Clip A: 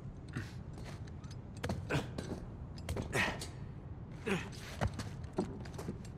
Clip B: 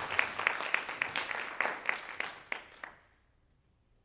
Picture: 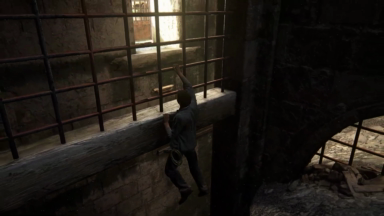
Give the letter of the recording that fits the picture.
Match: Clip A